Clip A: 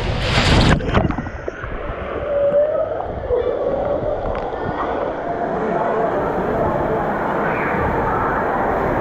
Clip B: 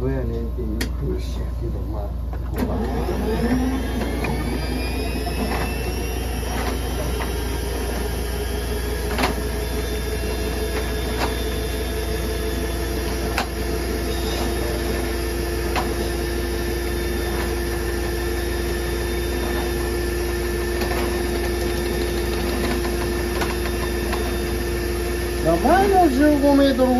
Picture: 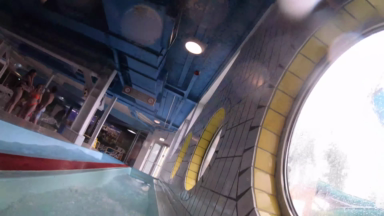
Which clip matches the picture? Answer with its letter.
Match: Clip A